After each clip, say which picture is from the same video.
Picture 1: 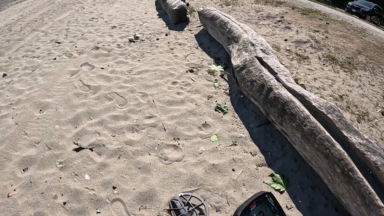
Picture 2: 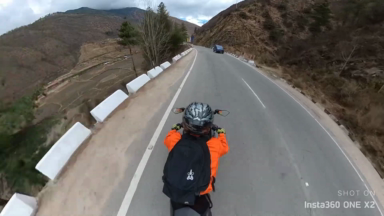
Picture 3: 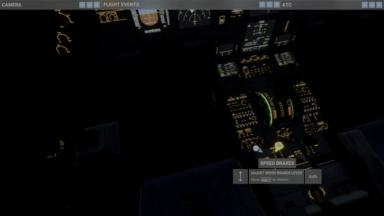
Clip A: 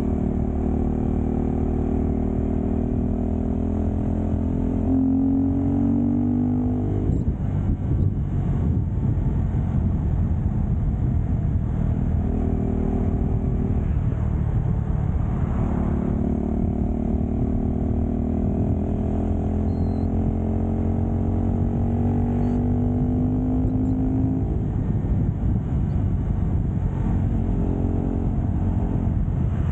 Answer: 2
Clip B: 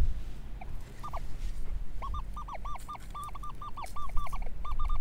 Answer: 1